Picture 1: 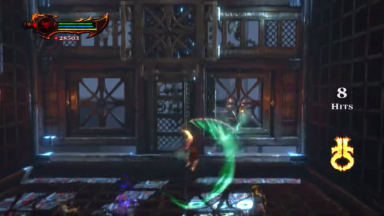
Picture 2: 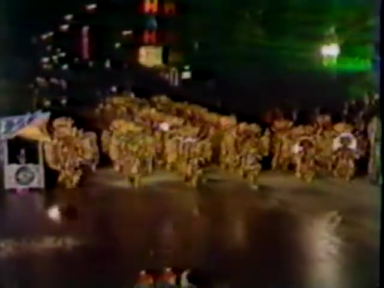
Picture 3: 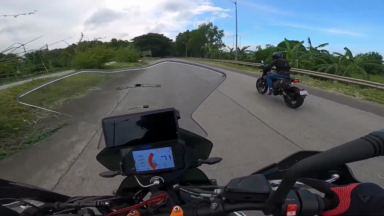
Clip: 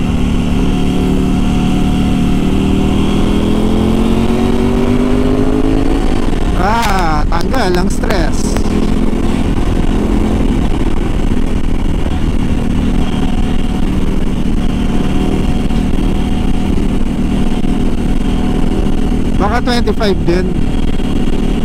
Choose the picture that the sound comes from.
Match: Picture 3